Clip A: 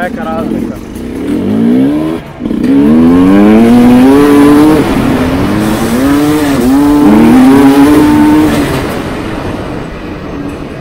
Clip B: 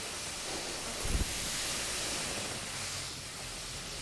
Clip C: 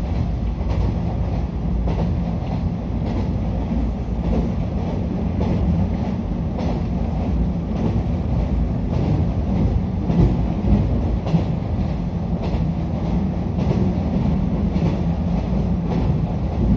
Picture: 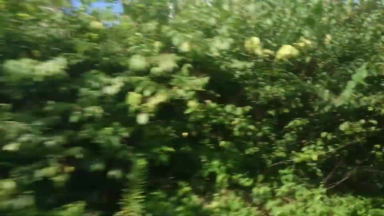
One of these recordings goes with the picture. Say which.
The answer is C